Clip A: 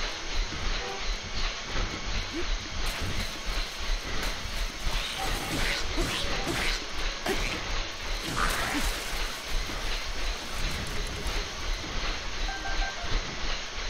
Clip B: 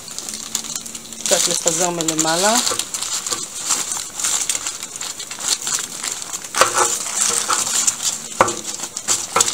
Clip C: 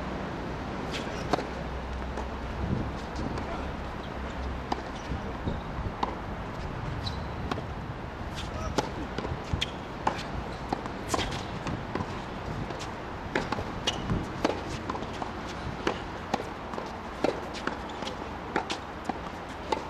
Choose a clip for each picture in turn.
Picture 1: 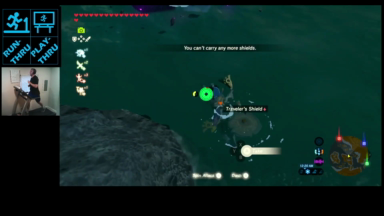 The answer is A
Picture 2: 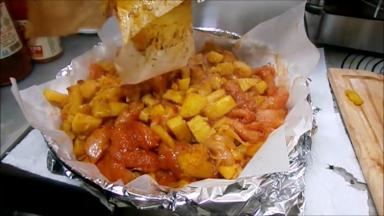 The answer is B